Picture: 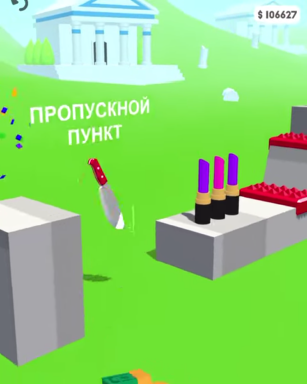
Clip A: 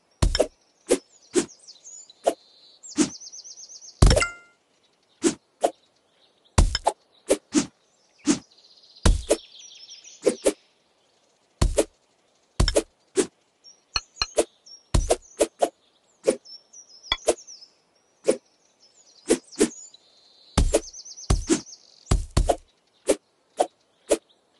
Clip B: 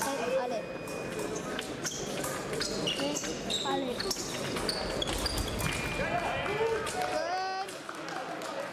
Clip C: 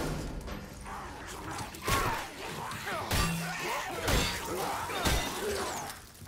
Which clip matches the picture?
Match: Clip A